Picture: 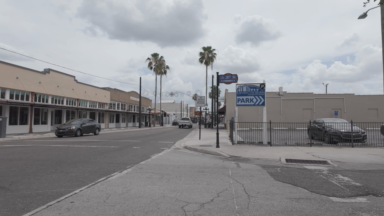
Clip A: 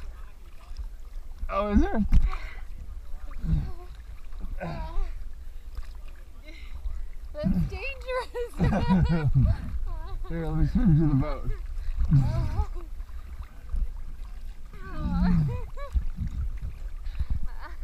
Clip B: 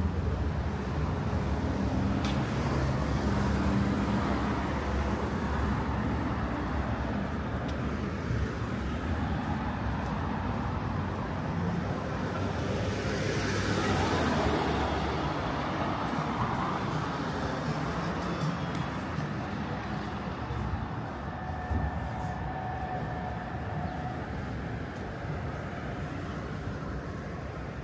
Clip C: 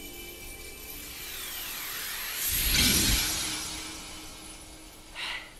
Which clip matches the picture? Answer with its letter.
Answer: B